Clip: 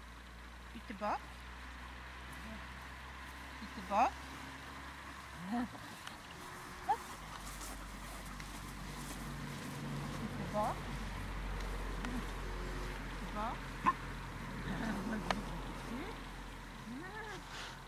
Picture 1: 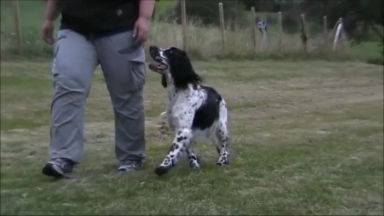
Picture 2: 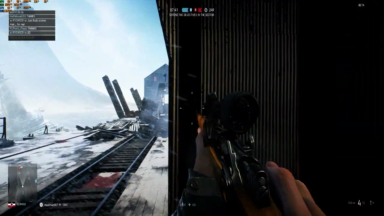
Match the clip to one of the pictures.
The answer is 1